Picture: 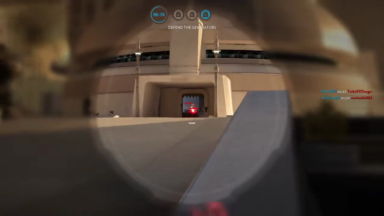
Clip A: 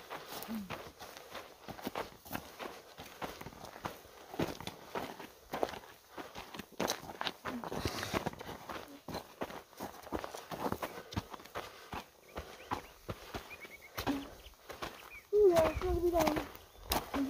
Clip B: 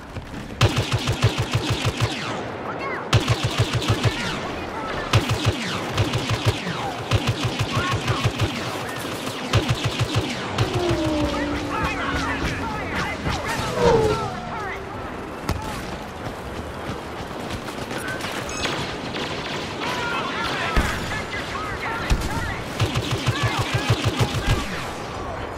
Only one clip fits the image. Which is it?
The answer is B